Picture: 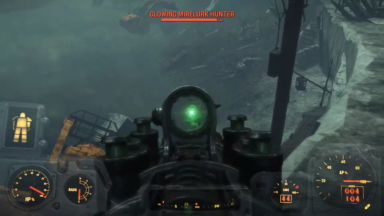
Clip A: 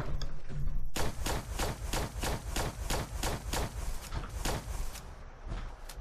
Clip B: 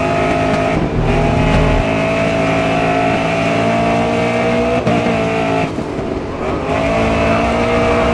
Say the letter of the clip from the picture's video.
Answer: A